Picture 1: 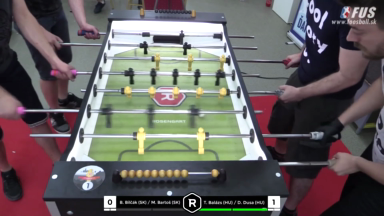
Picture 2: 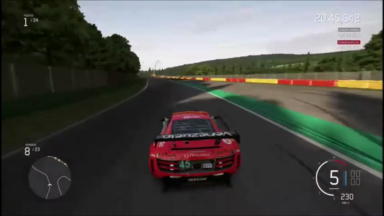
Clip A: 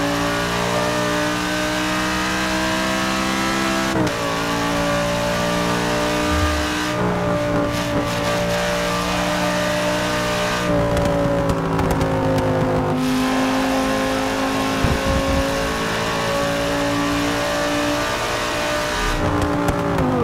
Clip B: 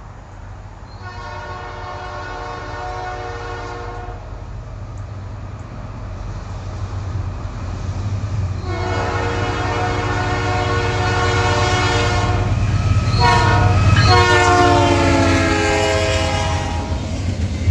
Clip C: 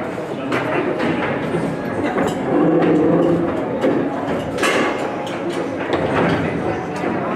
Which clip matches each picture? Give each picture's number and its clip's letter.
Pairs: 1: C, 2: A